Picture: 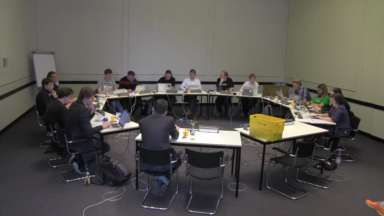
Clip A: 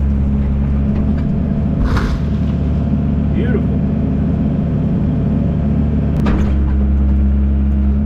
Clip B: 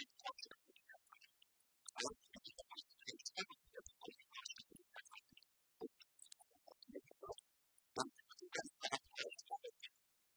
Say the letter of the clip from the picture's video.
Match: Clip B